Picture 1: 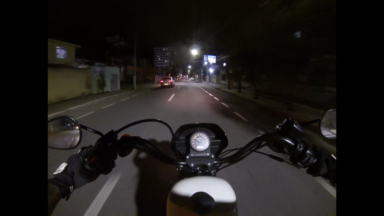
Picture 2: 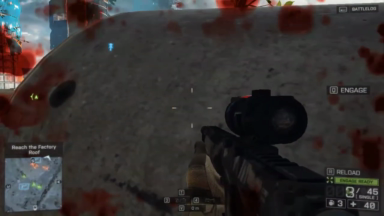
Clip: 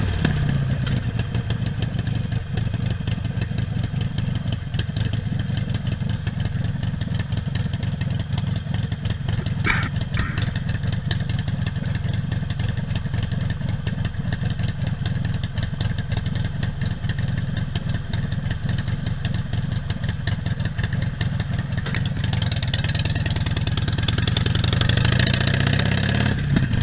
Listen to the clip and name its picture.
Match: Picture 1